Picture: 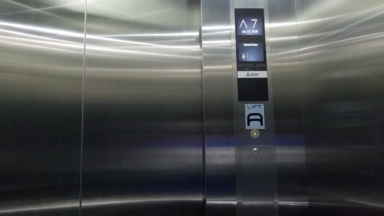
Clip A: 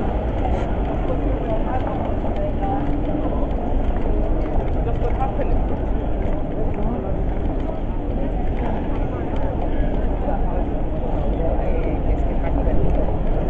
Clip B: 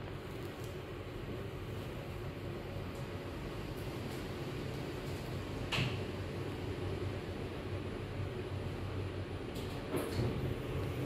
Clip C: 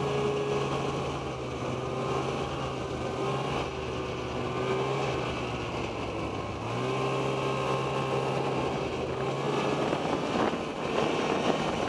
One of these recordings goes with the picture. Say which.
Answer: B